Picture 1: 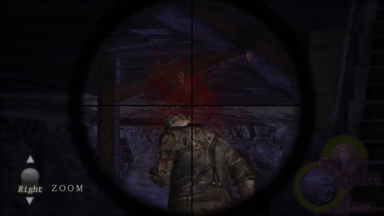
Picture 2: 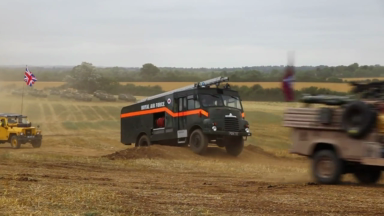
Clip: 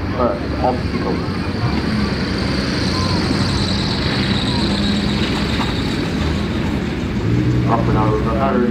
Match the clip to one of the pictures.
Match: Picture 2